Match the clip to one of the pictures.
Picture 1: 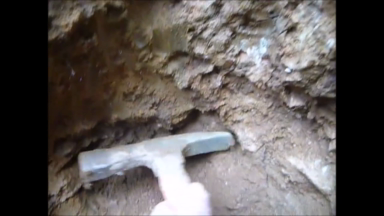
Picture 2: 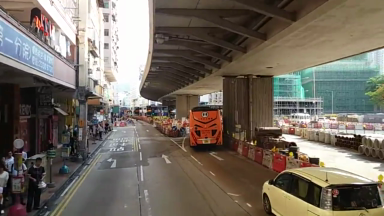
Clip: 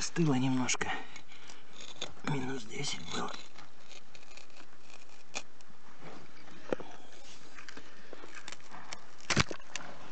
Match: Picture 1